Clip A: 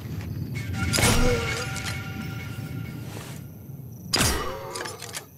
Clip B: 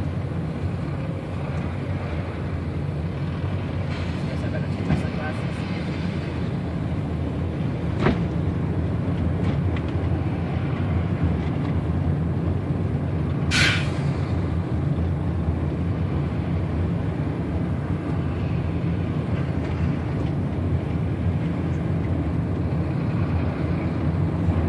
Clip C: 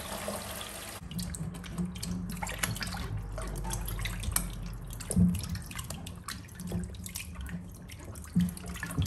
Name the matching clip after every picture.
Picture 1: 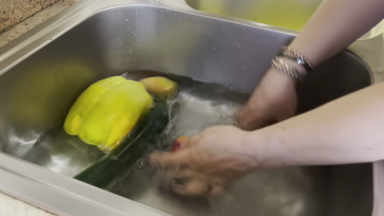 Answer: C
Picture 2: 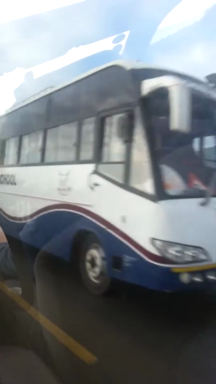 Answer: B